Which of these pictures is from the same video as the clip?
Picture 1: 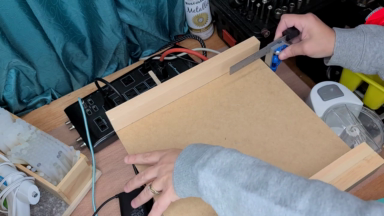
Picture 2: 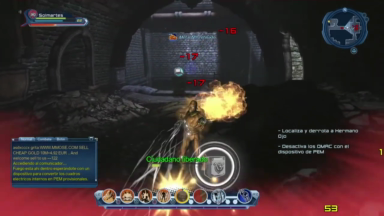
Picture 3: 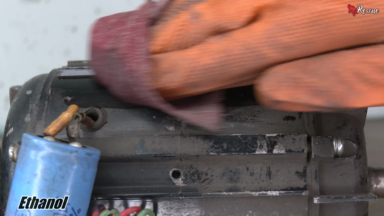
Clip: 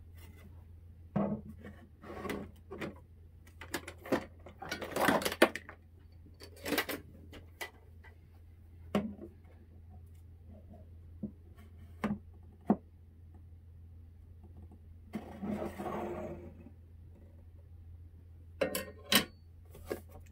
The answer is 1